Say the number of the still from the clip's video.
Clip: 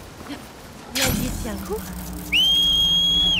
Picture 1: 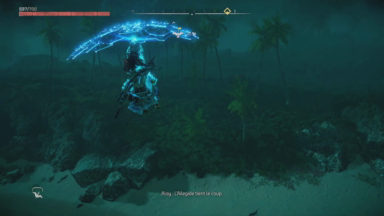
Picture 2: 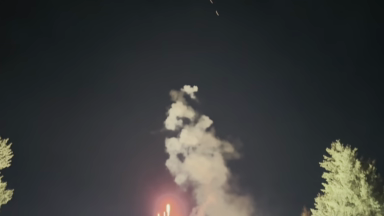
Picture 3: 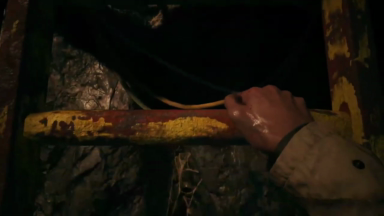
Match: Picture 1